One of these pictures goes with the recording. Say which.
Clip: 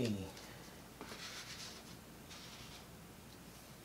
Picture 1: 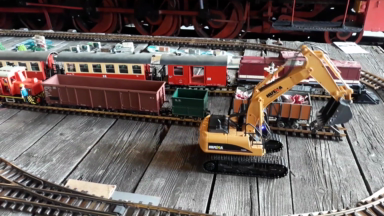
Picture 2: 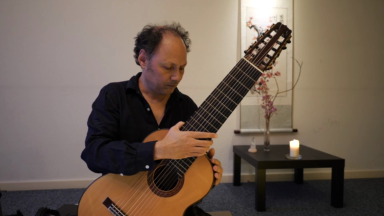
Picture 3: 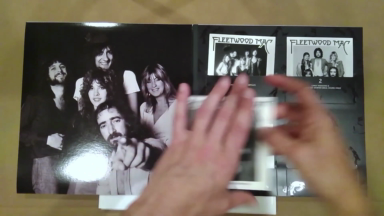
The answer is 3